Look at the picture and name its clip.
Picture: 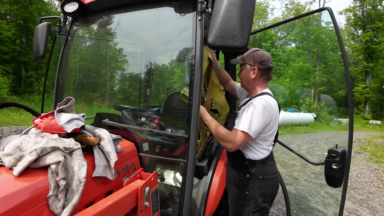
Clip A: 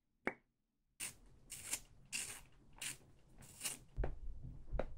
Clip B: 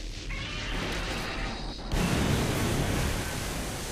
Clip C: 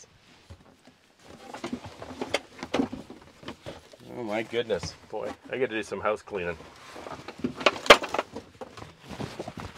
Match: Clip C